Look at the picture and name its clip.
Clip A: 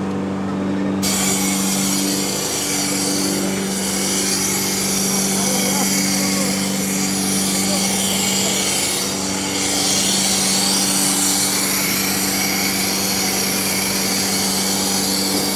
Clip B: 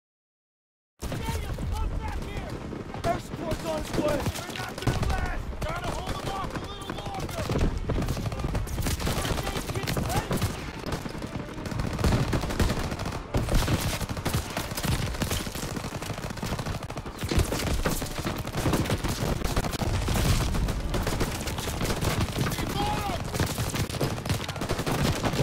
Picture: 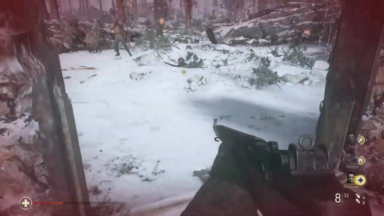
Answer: B